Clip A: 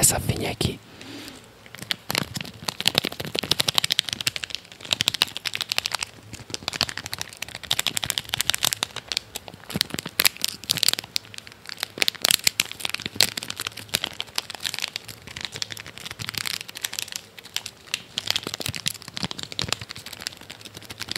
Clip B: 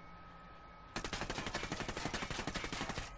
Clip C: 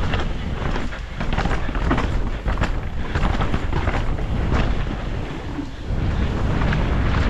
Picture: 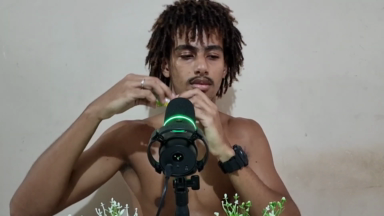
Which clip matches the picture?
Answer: A